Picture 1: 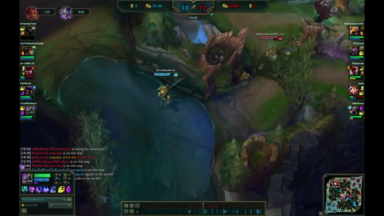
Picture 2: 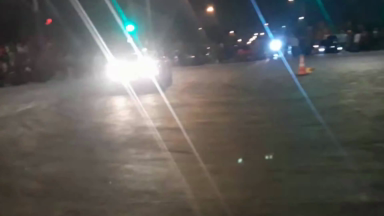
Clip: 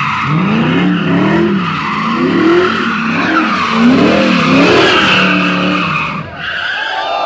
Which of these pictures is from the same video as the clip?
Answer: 2